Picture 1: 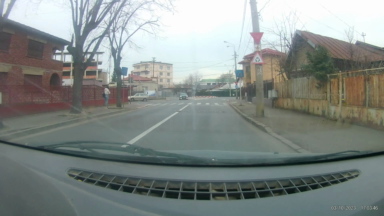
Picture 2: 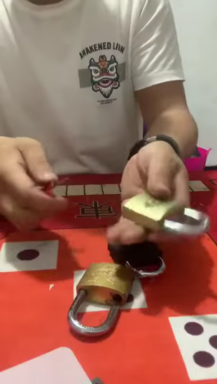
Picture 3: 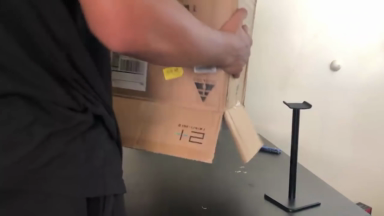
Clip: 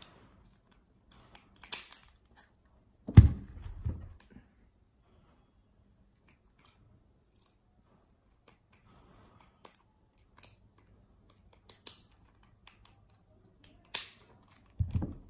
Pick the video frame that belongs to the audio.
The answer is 2